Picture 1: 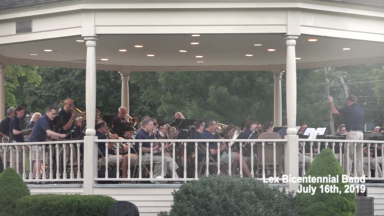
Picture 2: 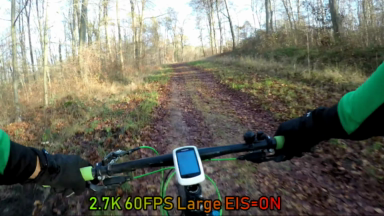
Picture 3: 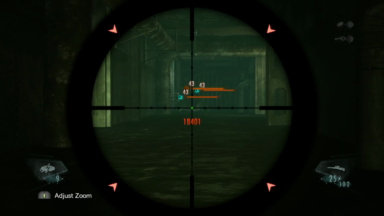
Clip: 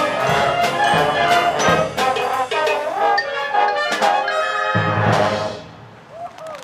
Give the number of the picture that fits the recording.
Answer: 1